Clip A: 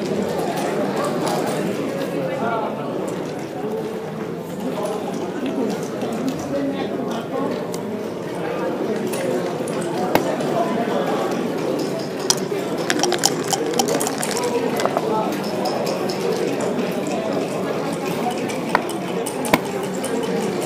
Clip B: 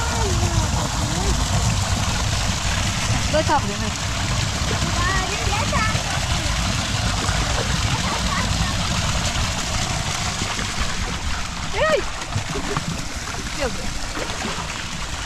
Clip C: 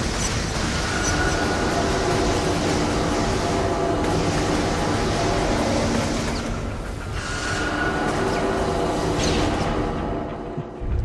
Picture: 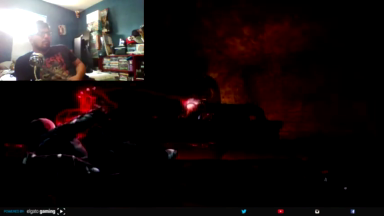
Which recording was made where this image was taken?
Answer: C